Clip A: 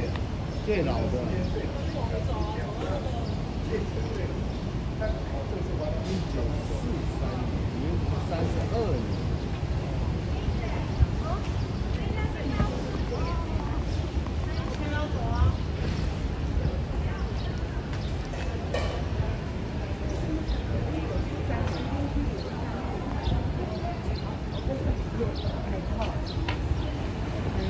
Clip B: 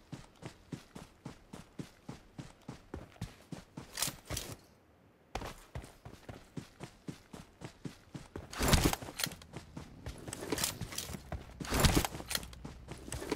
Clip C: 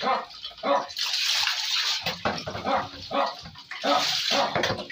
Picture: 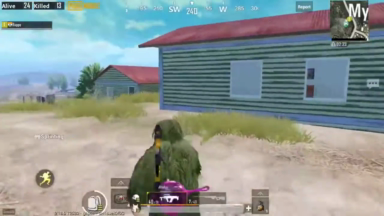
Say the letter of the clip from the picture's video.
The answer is B